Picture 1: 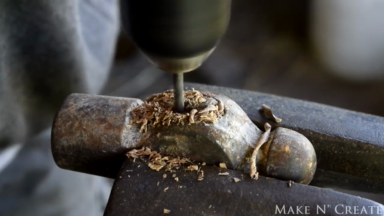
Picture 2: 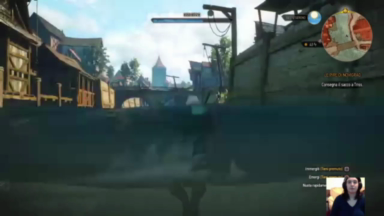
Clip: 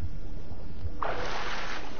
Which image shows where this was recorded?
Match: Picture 2